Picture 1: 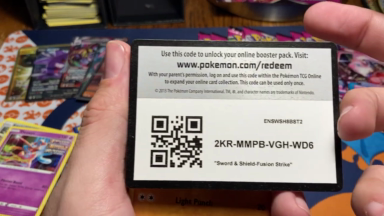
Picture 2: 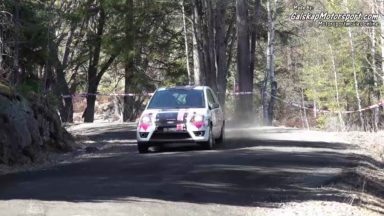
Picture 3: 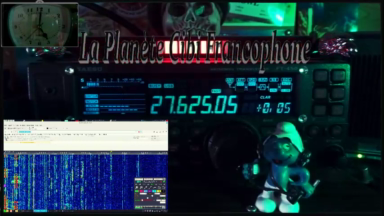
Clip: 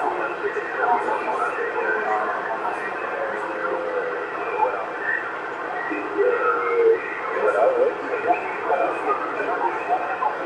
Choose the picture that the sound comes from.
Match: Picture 3